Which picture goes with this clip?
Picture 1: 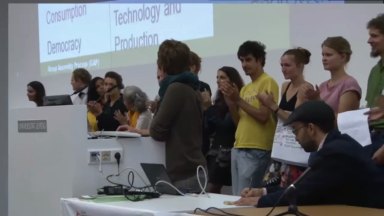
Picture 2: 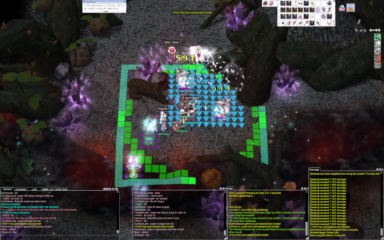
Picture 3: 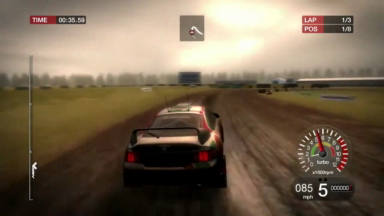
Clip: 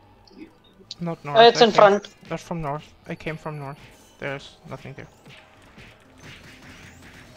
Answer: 2